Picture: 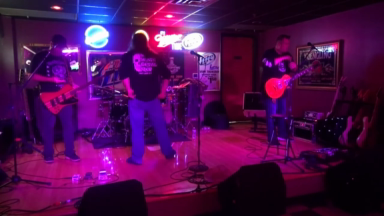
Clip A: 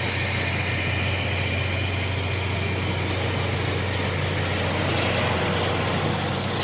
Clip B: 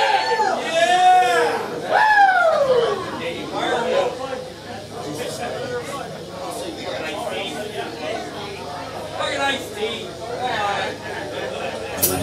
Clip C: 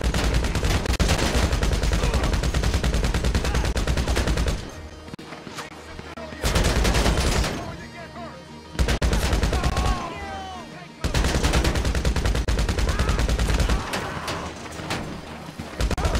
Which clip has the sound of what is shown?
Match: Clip B